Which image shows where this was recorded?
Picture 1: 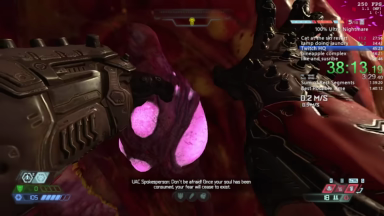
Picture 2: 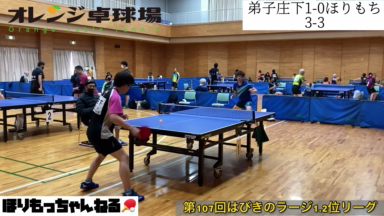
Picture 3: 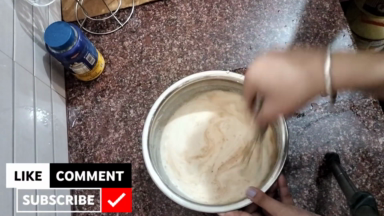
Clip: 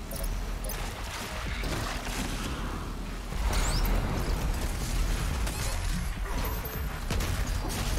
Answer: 1